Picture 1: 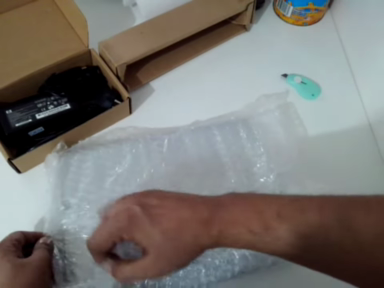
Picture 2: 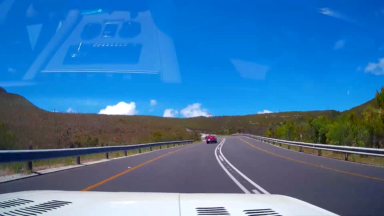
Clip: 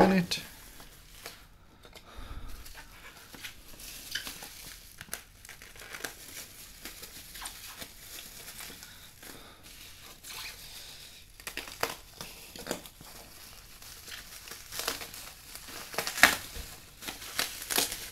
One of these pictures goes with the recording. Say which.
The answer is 1